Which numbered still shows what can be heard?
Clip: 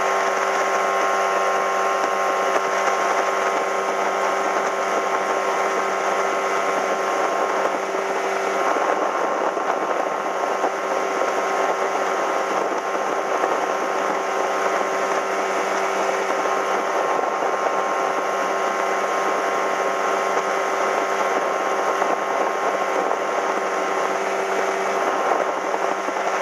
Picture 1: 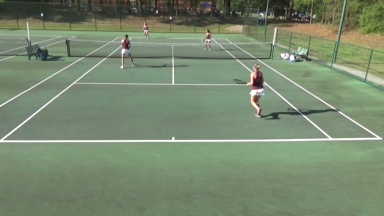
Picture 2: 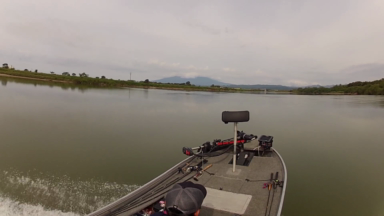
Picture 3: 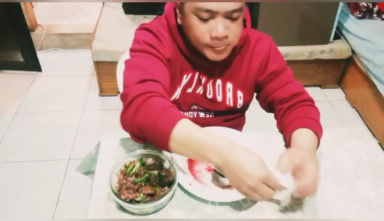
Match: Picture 2